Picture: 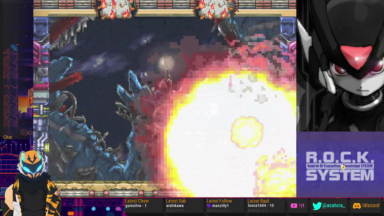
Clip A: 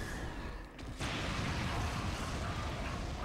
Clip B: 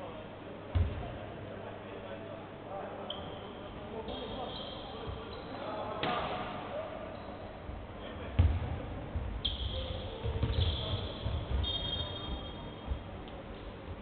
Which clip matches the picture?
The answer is A